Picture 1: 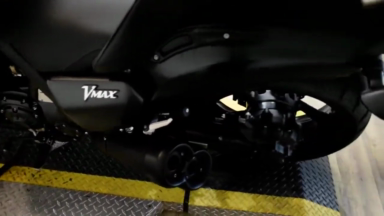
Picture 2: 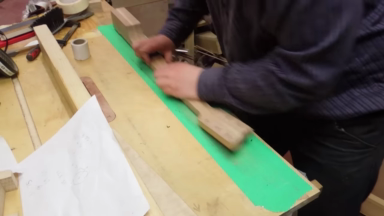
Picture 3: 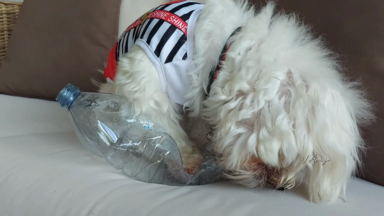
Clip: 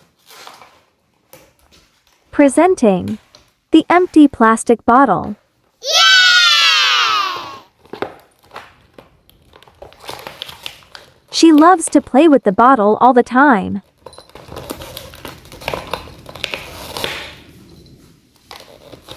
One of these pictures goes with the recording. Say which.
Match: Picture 3